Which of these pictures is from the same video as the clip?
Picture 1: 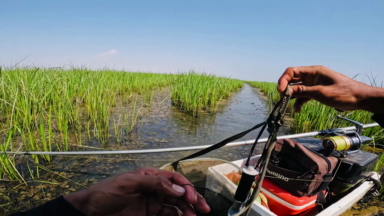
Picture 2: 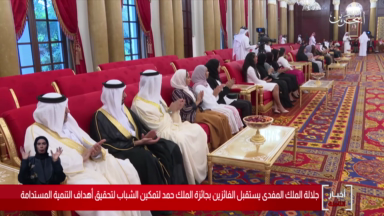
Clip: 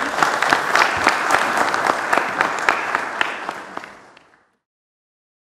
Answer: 2